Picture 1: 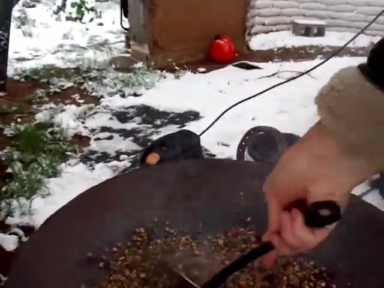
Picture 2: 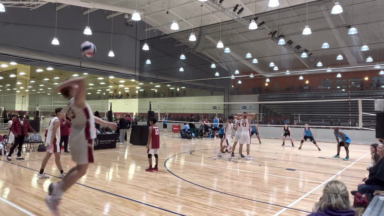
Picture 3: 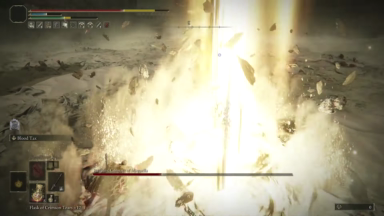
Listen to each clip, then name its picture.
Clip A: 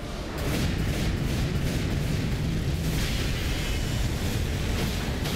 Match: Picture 3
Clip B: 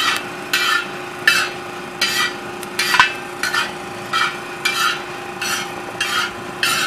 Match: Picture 1